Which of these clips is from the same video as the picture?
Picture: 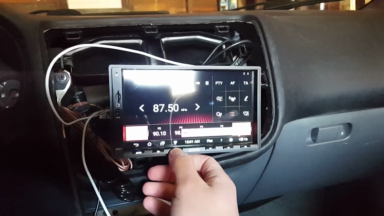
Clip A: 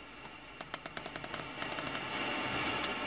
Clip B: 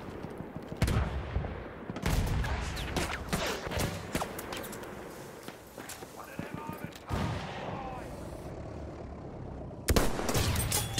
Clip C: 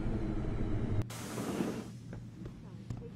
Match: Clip A